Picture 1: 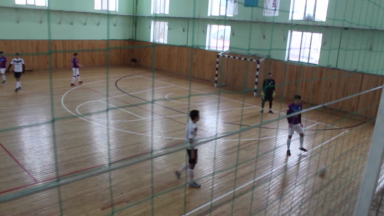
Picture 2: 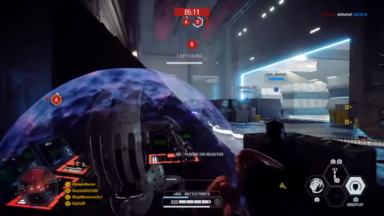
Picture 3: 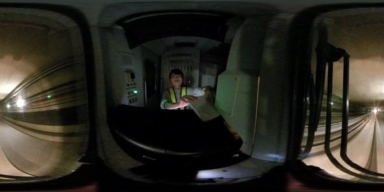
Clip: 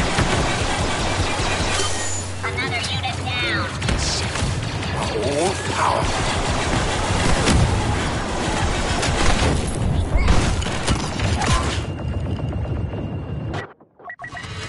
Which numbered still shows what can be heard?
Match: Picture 2